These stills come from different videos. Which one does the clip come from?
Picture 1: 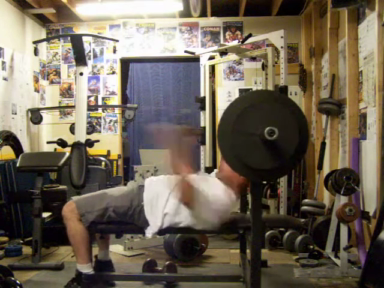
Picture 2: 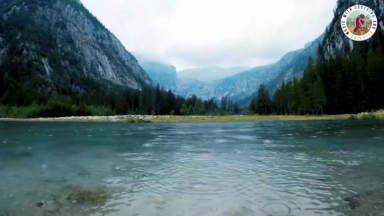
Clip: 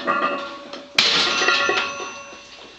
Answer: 1